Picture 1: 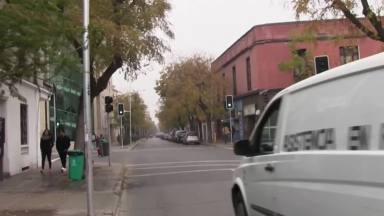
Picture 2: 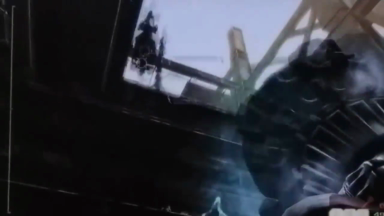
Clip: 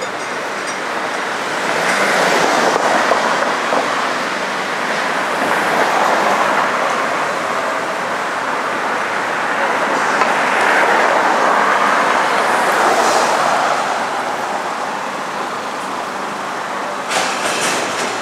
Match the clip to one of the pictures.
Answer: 1